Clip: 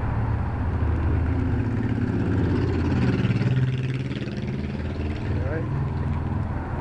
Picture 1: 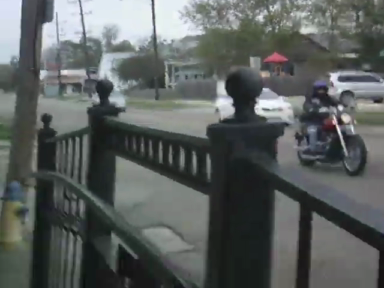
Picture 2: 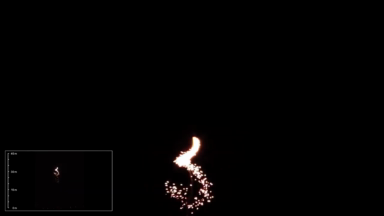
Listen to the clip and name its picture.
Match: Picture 1